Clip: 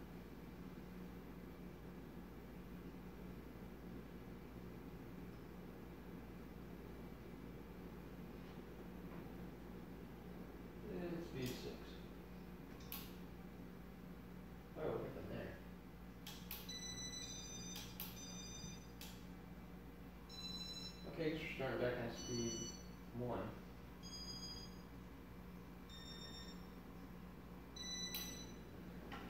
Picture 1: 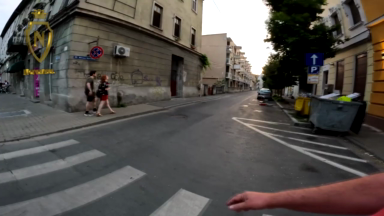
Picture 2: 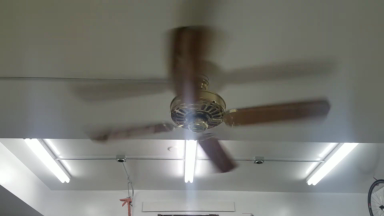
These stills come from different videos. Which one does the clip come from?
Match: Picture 2